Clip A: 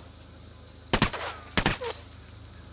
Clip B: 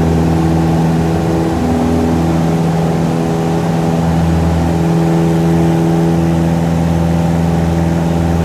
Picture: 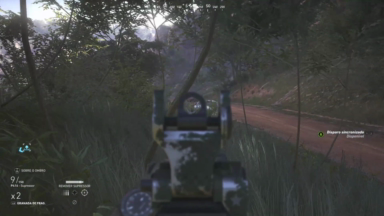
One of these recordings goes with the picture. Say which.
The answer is A